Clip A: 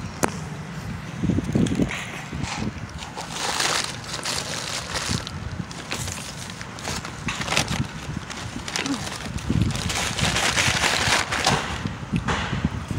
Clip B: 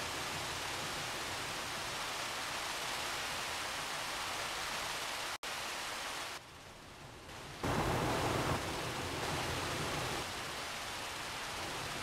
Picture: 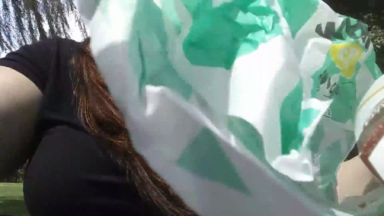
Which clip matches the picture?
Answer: A